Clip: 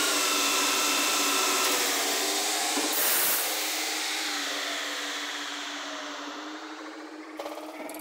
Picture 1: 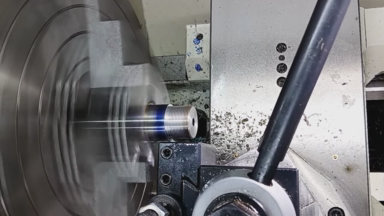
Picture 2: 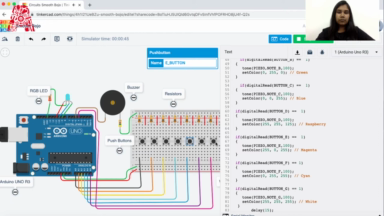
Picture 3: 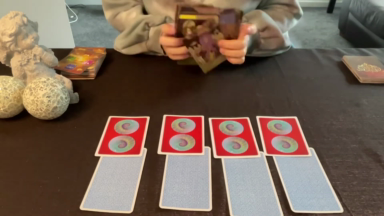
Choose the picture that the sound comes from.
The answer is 1